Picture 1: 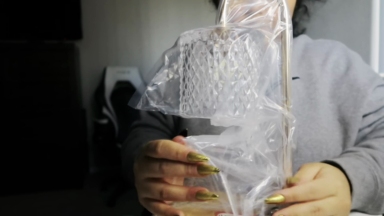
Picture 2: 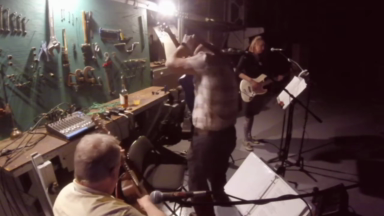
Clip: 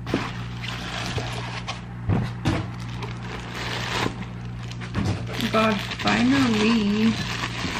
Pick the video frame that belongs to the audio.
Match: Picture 1